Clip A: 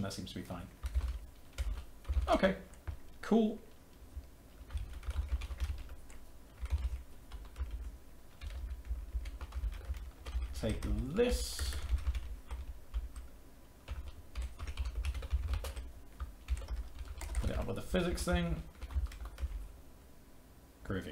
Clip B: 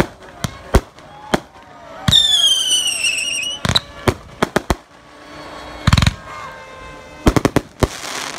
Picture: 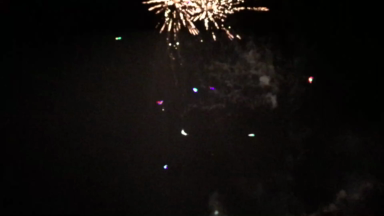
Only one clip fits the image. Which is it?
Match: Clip B